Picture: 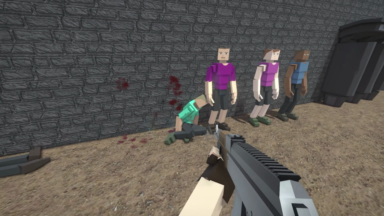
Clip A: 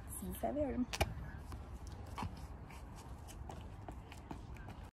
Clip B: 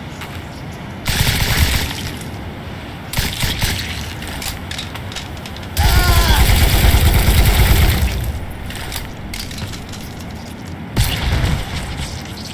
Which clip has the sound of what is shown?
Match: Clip B